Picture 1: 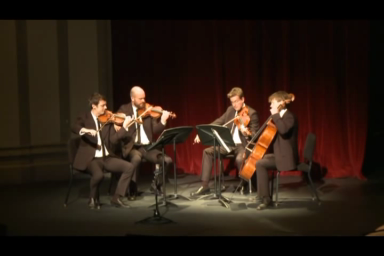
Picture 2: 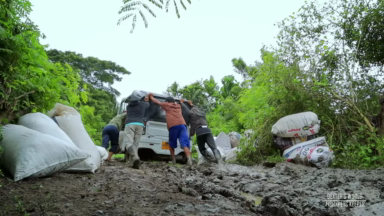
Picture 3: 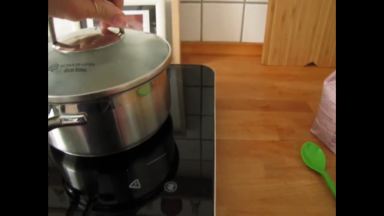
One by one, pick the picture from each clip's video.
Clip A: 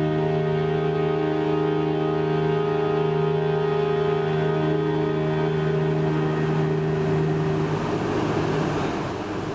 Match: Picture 1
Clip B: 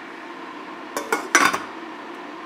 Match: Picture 3